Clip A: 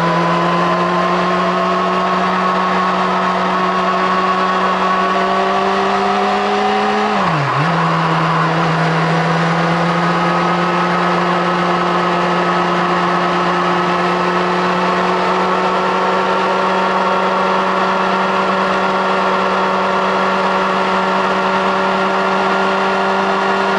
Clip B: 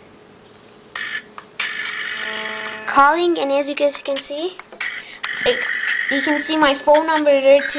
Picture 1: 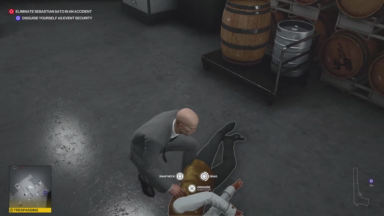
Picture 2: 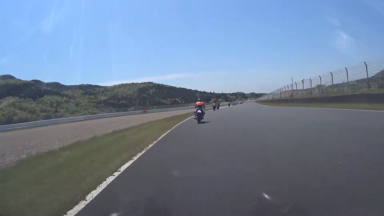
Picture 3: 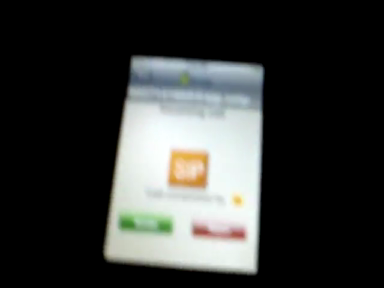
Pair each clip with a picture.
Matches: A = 2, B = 3